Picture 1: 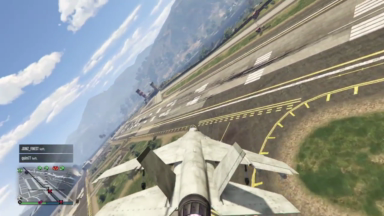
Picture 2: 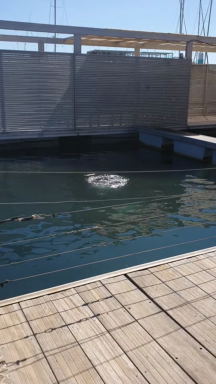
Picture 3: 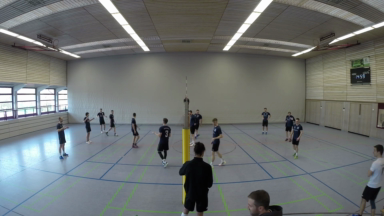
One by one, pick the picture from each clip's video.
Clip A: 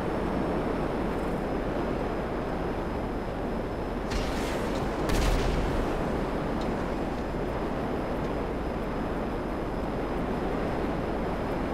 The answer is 1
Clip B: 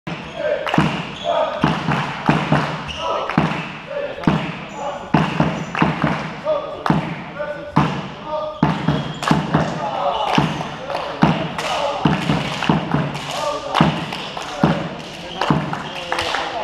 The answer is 3